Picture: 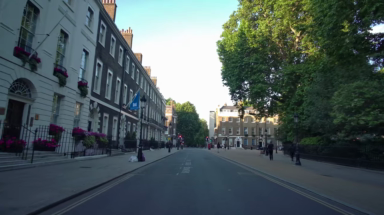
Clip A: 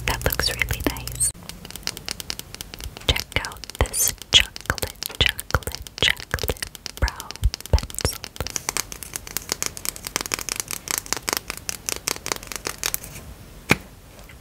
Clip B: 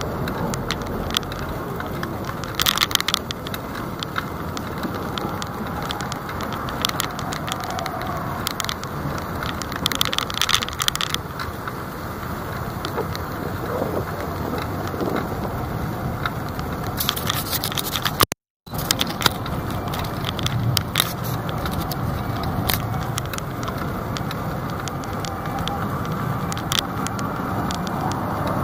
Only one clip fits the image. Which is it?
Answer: B